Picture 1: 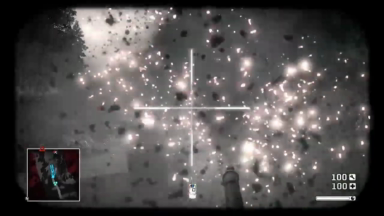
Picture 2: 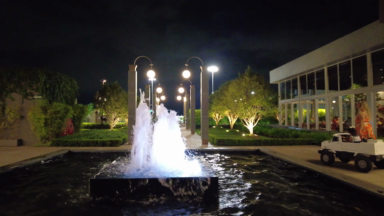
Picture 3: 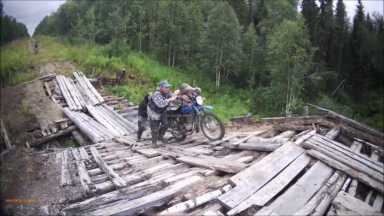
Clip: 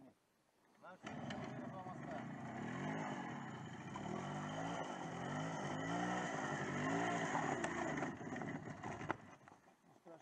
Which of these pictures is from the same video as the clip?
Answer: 3